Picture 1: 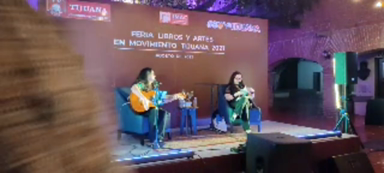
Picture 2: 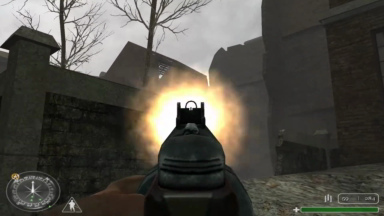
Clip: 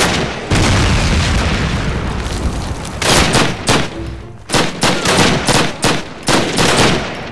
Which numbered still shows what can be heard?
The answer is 2